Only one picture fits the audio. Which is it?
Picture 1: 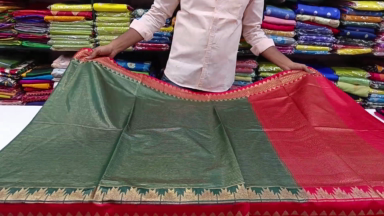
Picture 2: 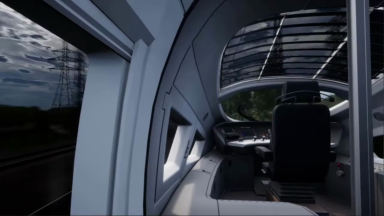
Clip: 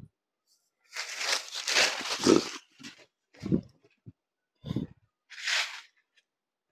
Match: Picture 1